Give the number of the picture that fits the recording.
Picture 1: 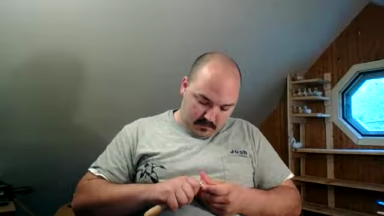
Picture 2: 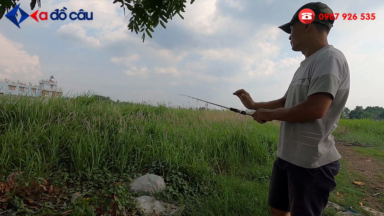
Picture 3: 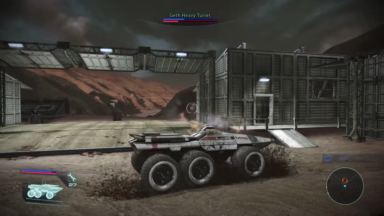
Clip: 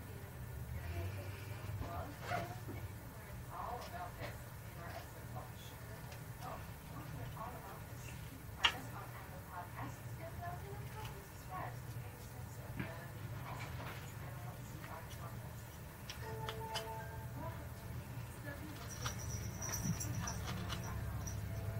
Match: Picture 1